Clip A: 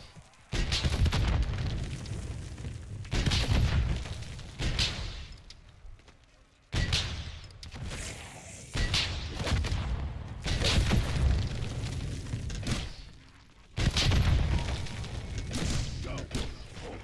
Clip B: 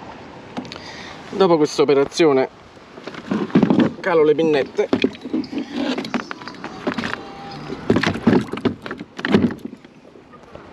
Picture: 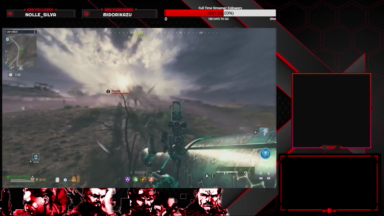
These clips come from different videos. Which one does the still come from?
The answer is A